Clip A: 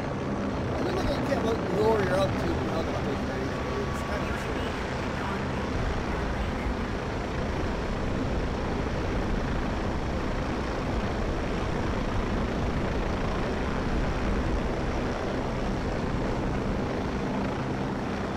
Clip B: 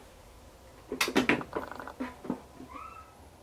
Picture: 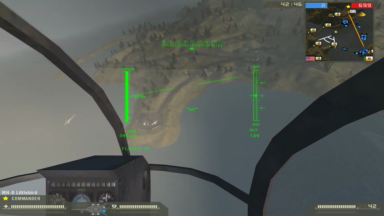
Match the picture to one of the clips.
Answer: A